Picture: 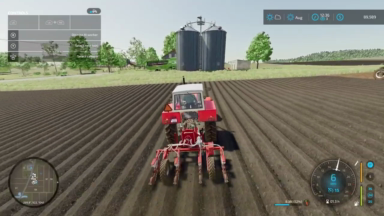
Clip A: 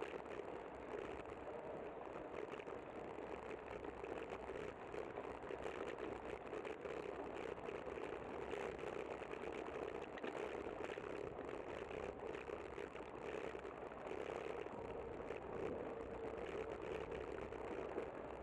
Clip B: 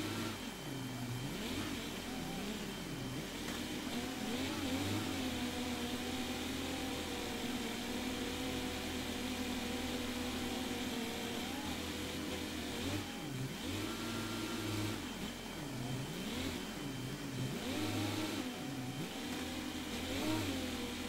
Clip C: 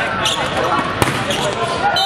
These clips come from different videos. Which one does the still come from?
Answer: B